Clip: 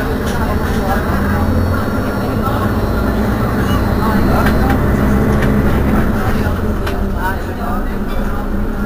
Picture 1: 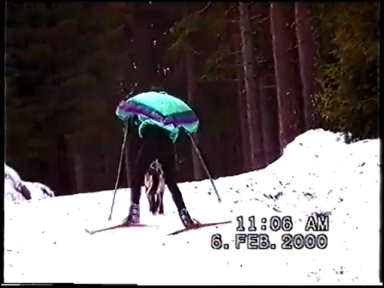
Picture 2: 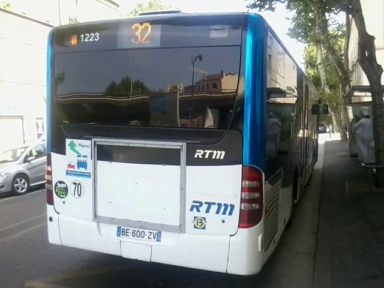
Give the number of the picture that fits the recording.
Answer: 2